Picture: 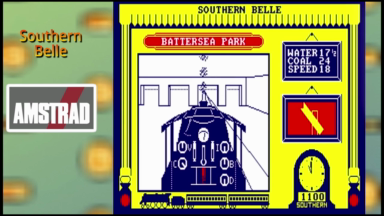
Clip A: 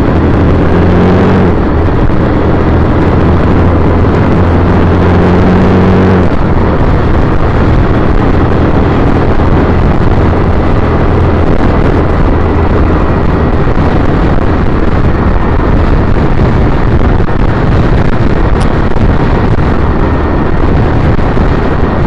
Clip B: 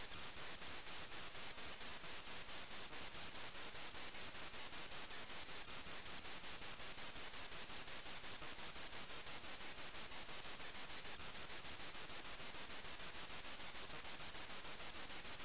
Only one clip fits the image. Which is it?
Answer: B